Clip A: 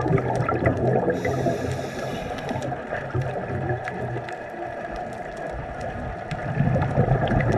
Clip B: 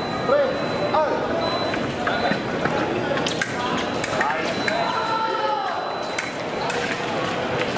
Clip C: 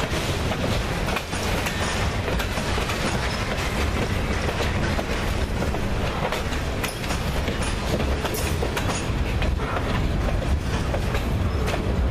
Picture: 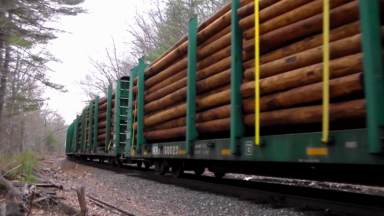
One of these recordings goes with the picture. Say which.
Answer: C